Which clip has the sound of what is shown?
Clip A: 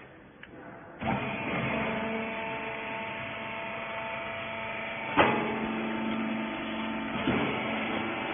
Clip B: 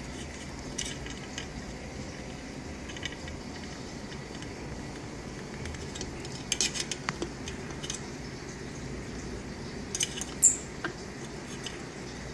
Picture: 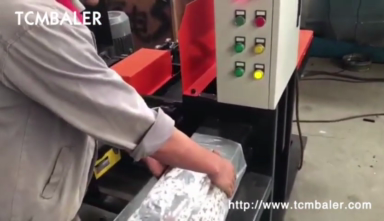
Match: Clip A